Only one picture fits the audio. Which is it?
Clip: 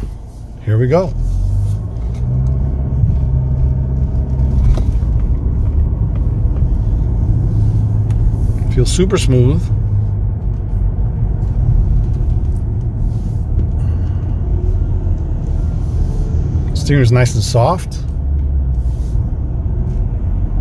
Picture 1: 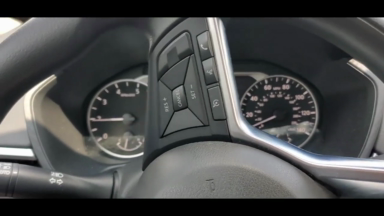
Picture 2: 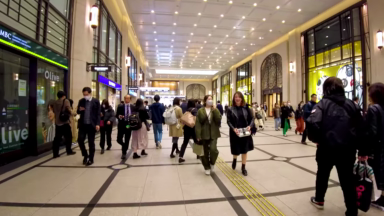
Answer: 1